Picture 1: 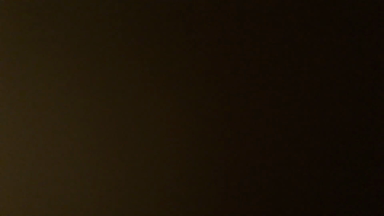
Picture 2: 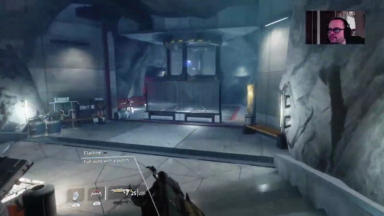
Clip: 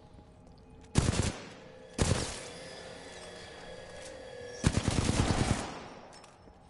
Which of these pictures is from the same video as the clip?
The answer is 2